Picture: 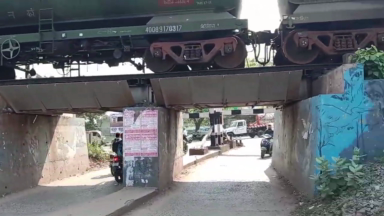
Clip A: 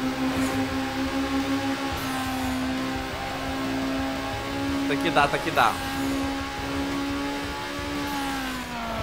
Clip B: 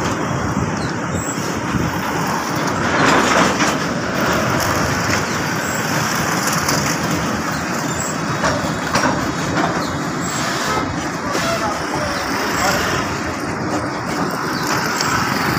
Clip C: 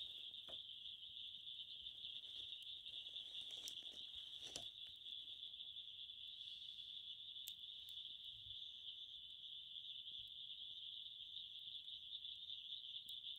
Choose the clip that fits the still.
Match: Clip B